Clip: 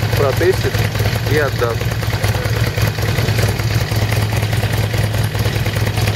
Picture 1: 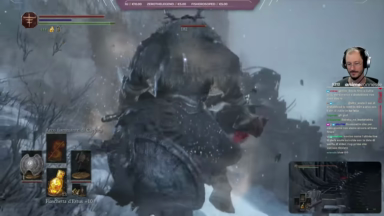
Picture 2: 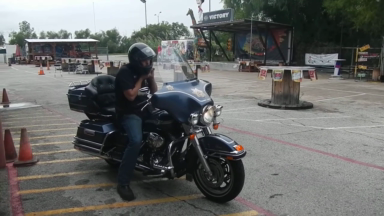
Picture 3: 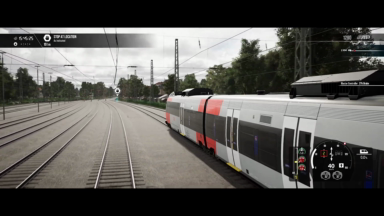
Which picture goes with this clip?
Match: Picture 2